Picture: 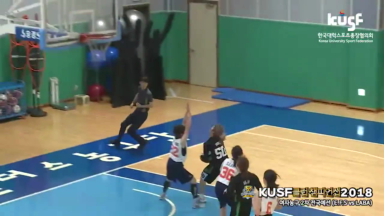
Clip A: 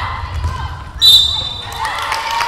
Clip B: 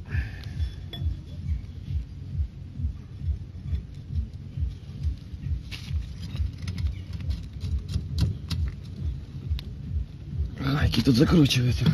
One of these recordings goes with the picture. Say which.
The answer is A